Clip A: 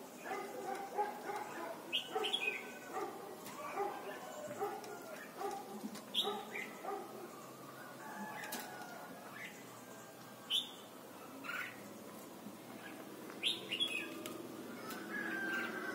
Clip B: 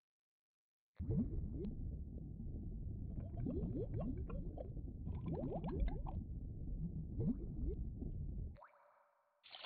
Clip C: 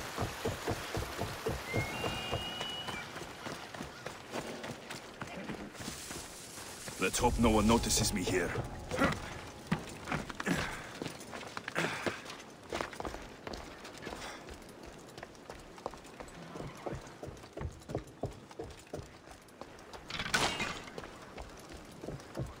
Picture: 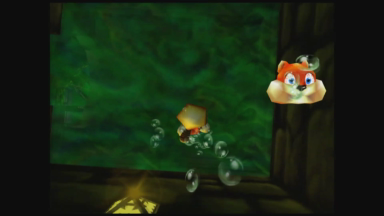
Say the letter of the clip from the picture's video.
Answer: B